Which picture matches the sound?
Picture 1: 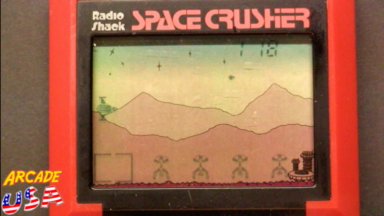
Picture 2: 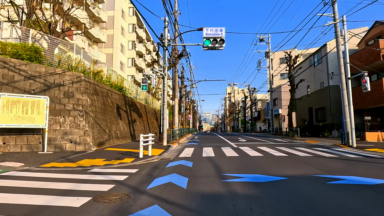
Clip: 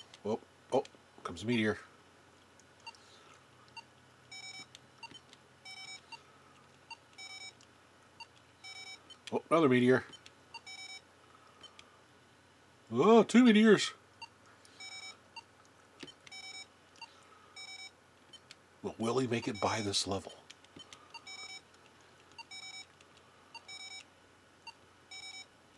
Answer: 1